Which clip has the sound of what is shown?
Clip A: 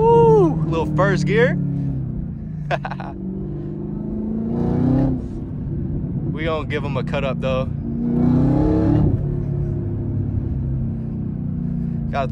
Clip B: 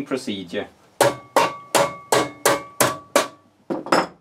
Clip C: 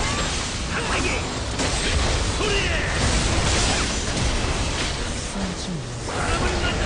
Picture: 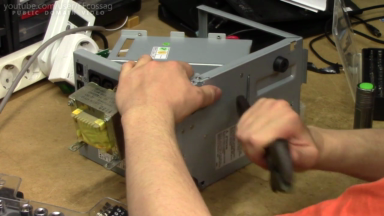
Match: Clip B